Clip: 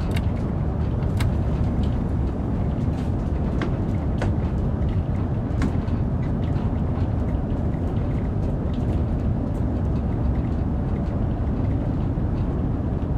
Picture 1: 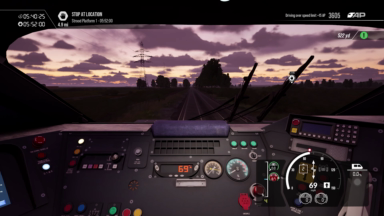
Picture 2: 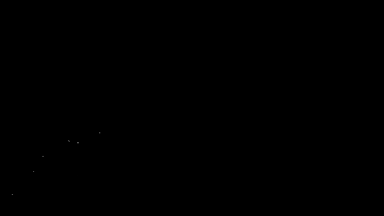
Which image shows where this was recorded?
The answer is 1